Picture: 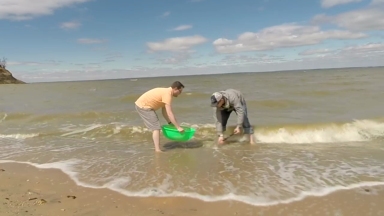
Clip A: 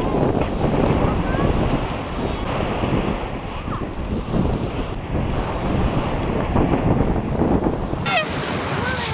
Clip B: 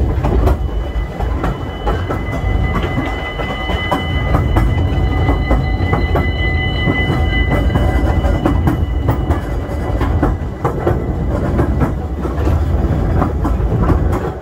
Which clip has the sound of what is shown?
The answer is A